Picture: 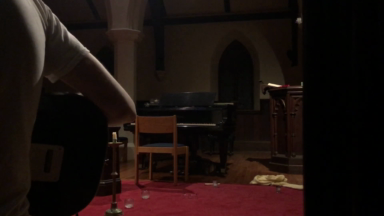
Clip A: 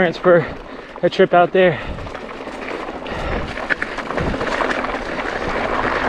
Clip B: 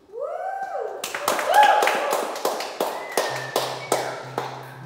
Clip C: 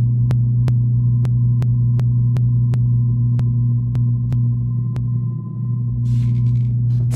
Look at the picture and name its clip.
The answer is B